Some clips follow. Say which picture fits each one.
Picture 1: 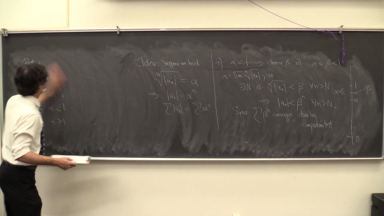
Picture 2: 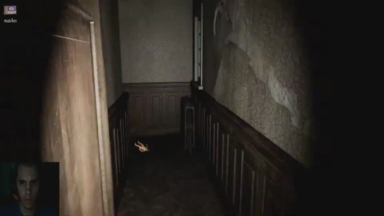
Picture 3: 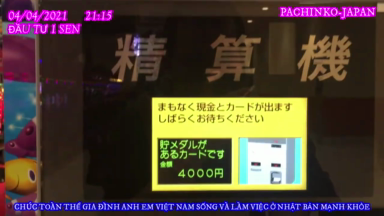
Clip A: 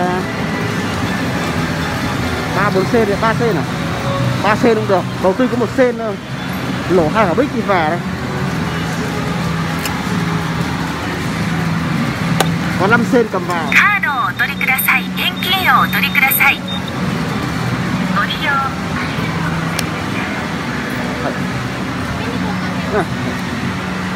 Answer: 3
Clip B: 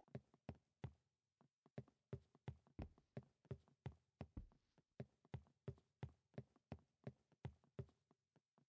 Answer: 2